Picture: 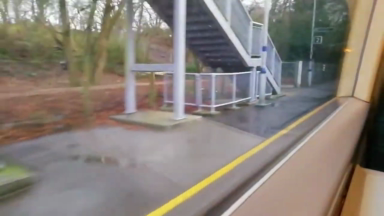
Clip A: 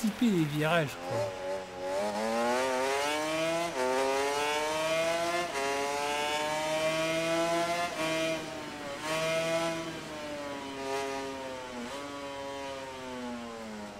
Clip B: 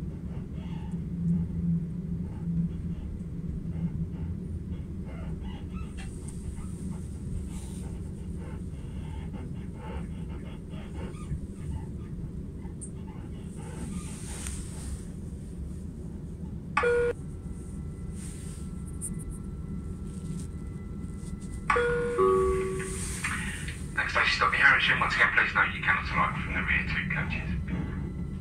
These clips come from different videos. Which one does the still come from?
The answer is B